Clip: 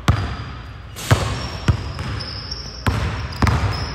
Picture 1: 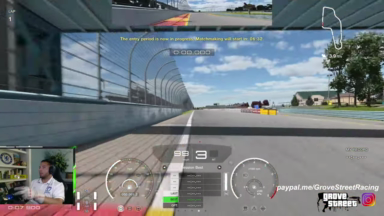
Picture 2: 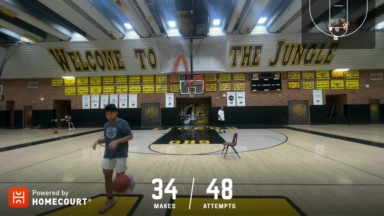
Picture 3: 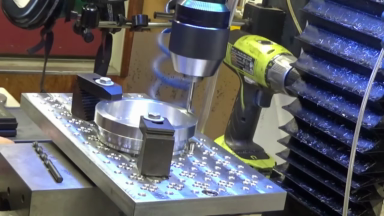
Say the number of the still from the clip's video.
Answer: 2